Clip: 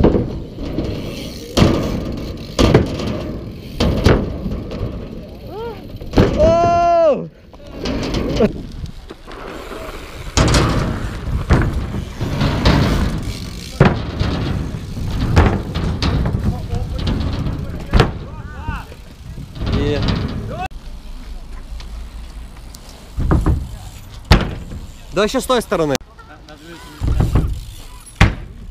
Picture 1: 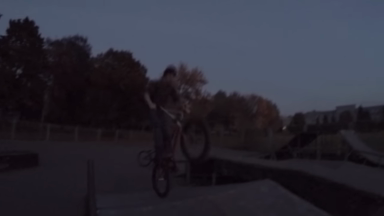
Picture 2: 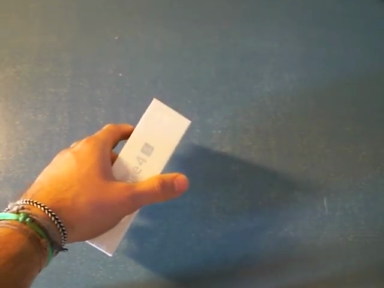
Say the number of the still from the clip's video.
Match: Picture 1